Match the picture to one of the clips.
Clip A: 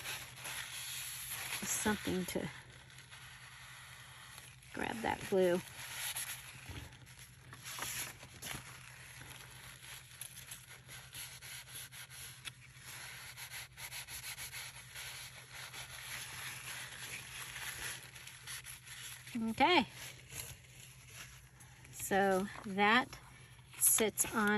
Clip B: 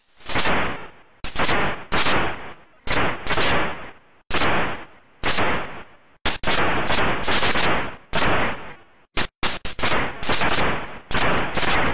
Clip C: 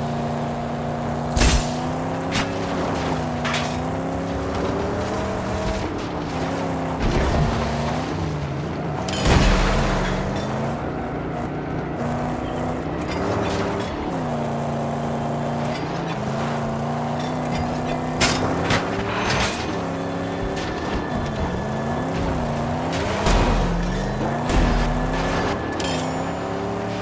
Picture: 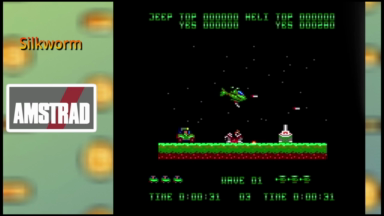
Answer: B